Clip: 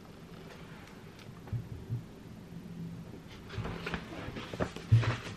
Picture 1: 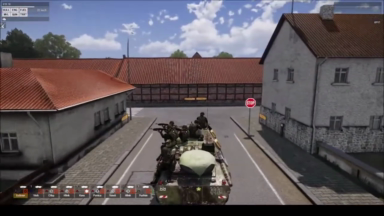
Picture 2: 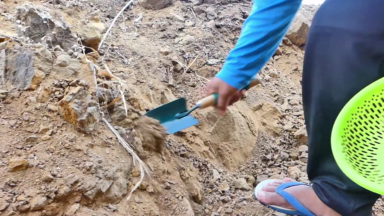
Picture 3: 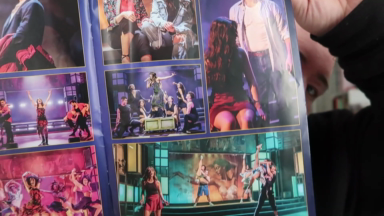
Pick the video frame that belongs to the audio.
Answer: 3